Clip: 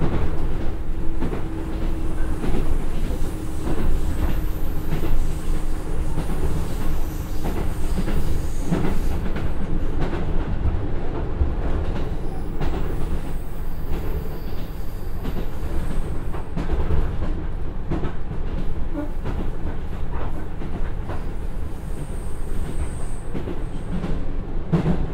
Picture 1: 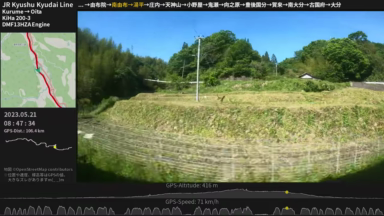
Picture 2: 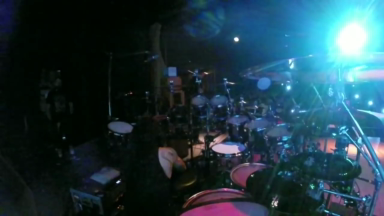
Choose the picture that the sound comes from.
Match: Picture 1